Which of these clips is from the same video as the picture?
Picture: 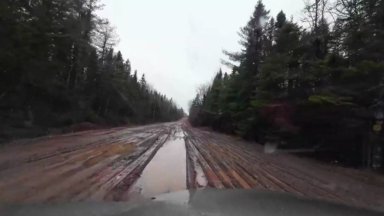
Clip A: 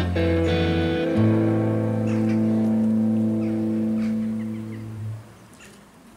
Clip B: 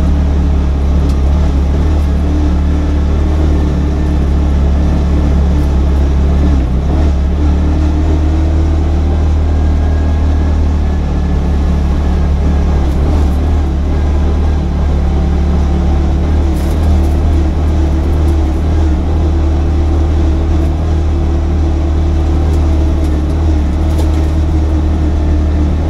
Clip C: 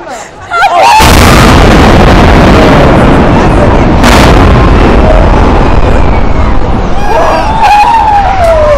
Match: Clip B